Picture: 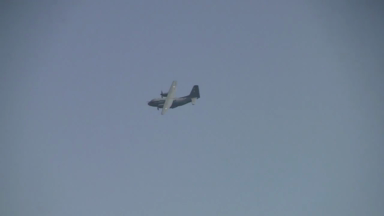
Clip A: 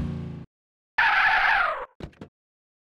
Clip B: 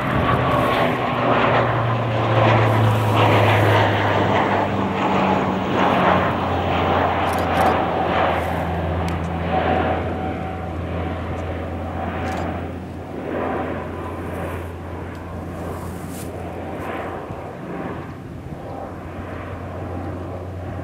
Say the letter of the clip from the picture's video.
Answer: B